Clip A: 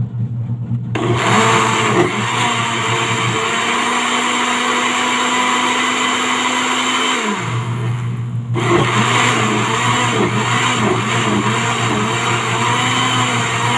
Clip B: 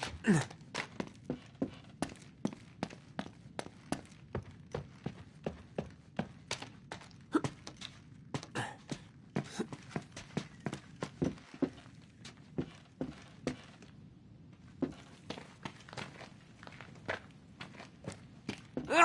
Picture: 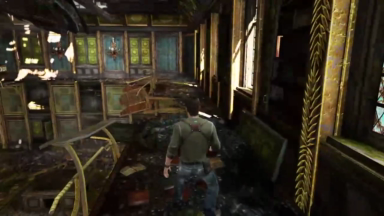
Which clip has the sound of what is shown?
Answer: B